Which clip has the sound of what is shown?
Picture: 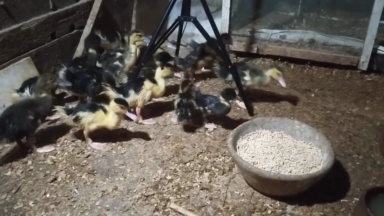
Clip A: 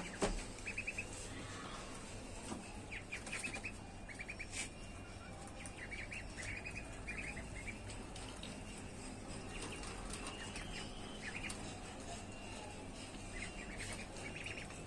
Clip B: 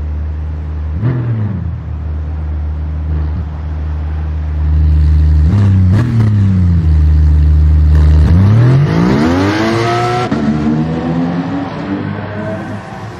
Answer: A